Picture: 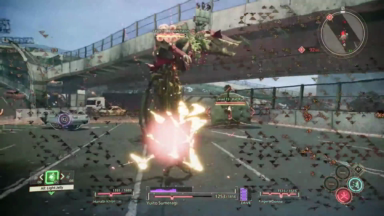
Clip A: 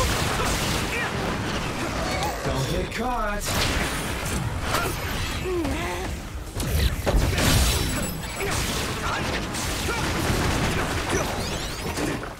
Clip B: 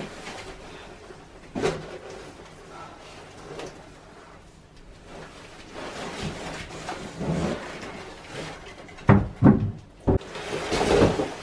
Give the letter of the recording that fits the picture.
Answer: A